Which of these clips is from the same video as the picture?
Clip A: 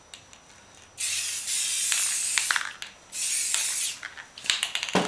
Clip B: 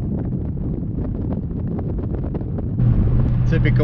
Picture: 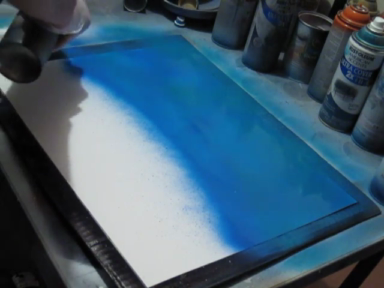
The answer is A